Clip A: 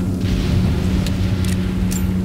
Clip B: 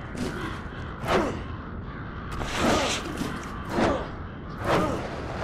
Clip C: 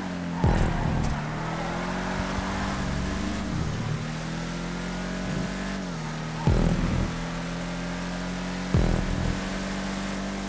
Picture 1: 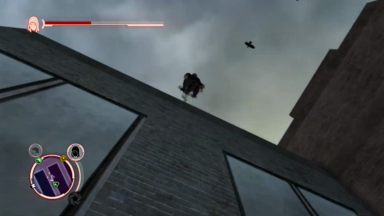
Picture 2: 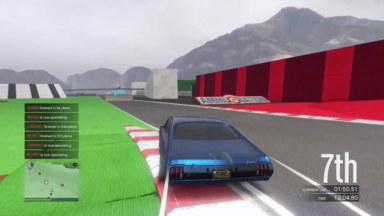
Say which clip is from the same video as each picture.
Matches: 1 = B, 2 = C